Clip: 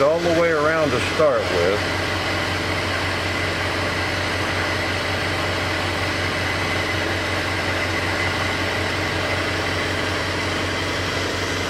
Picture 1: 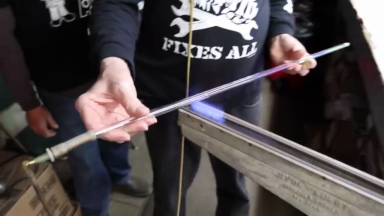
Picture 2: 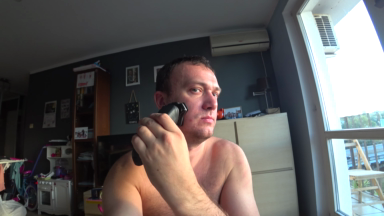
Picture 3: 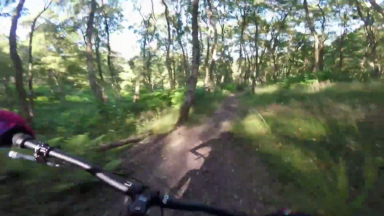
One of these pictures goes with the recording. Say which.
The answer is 1